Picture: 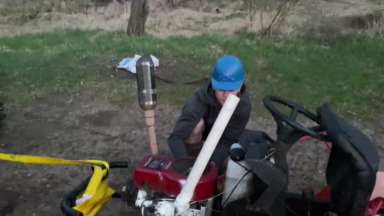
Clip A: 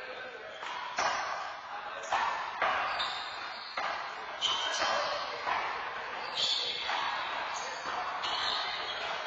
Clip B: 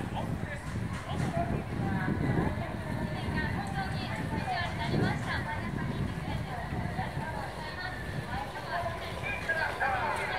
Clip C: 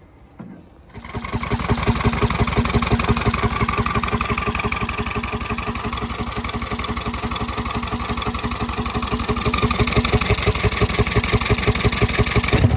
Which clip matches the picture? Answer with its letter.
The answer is C